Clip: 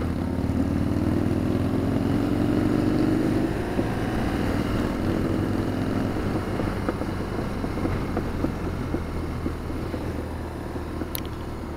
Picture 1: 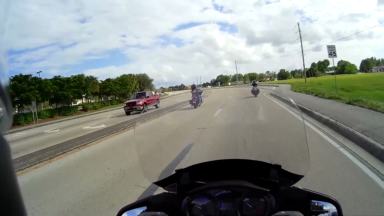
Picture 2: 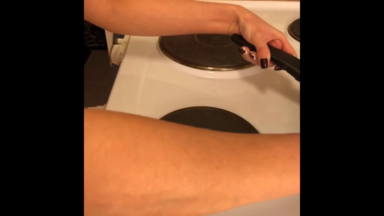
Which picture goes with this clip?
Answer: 1